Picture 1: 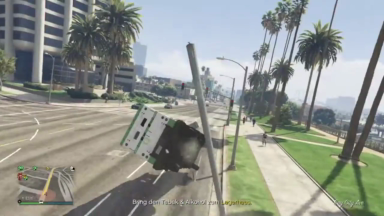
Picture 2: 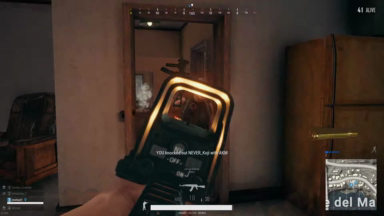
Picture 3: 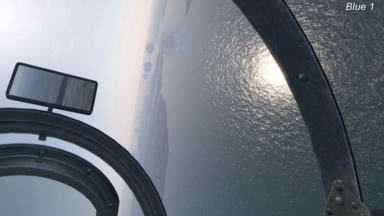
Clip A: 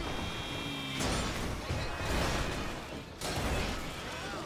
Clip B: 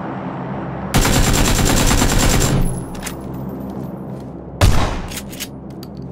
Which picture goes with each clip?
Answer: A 1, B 2